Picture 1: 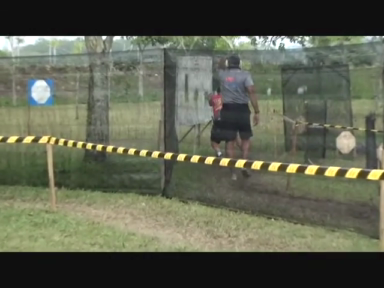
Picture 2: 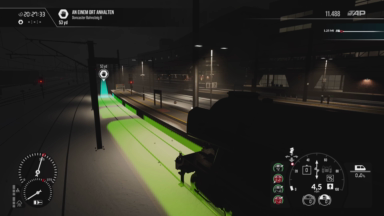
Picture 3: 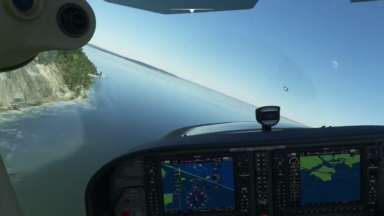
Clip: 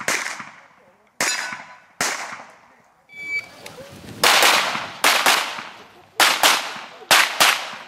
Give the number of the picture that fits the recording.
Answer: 1